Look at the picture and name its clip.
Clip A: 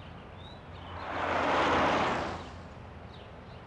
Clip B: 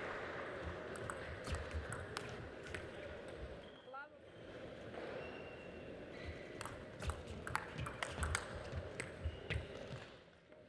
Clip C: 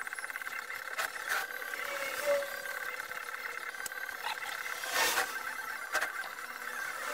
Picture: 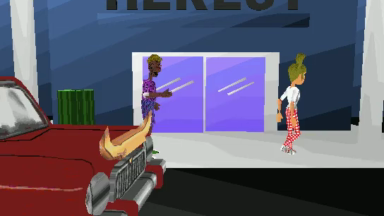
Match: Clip A